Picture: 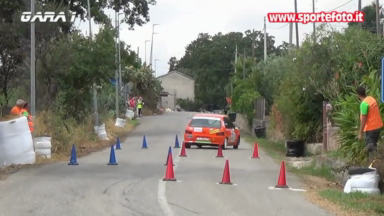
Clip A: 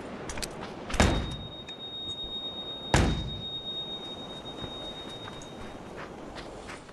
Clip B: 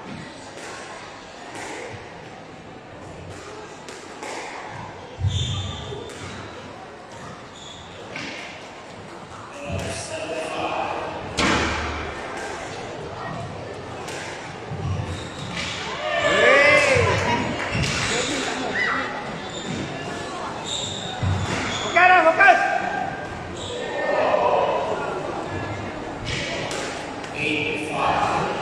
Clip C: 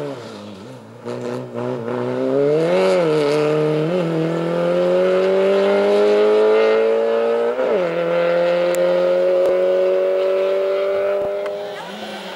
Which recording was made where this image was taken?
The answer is C